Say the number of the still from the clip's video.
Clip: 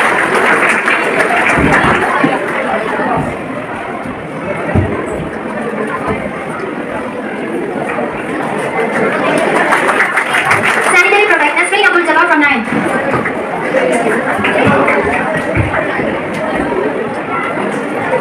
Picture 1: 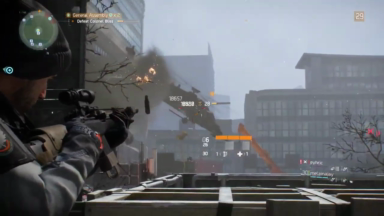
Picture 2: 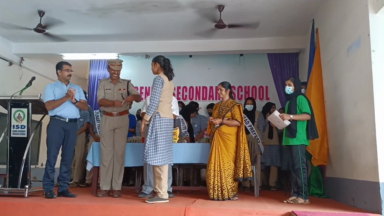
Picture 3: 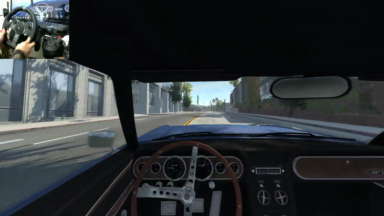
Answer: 2